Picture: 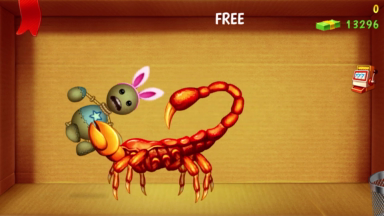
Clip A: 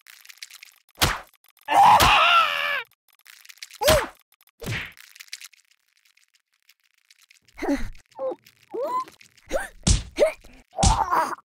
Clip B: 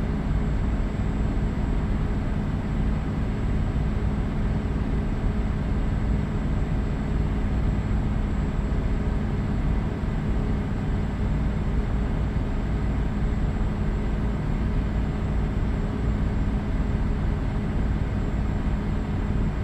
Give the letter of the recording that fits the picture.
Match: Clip A